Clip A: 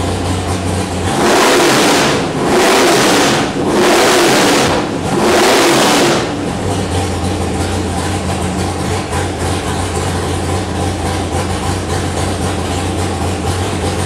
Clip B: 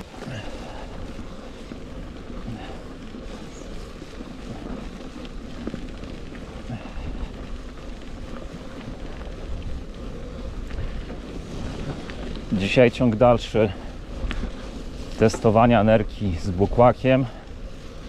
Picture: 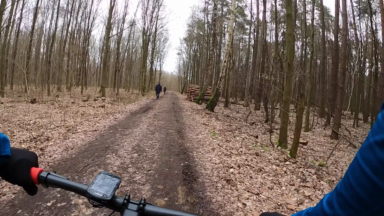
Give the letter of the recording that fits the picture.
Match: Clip B